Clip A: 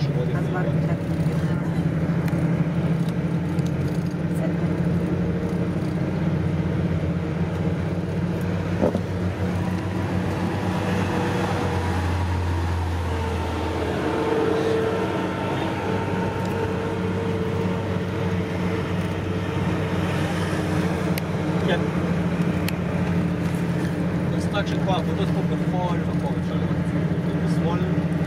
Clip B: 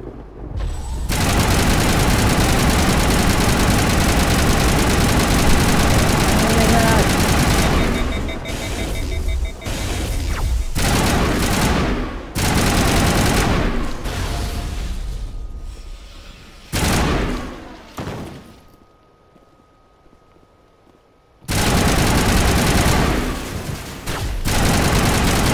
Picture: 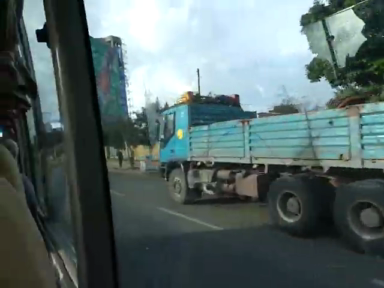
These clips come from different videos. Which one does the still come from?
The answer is A